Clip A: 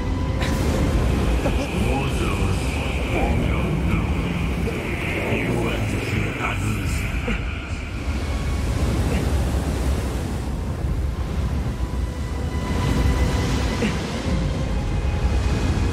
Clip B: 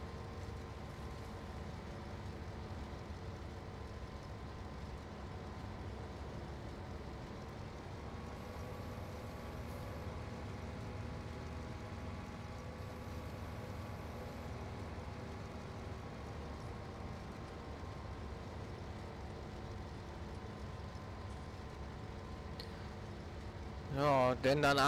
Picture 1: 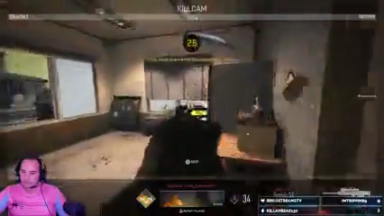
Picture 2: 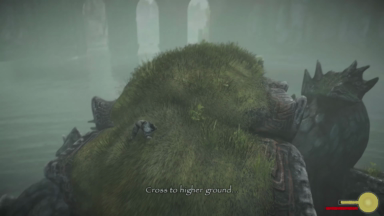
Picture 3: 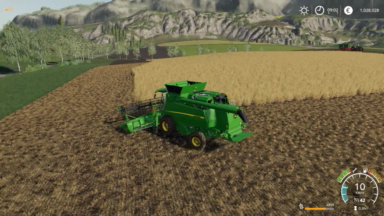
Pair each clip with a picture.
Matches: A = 2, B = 3